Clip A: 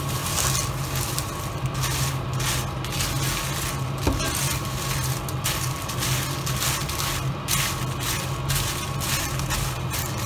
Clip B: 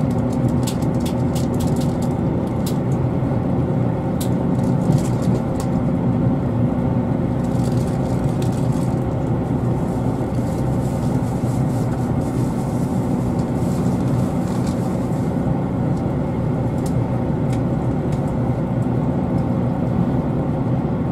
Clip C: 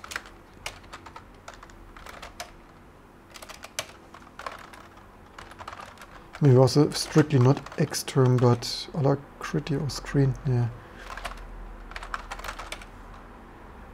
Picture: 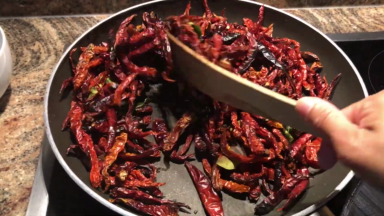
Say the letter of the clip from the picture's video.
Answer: A